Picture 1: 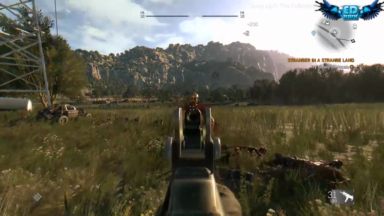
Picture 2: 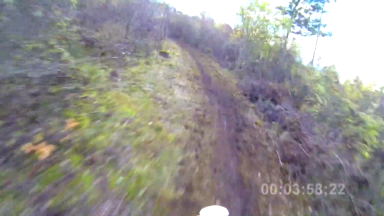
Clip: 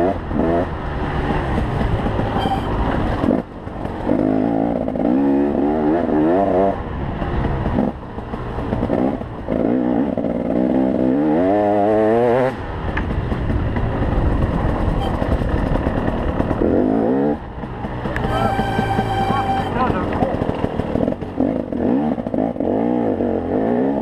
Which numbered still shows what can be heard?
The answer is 2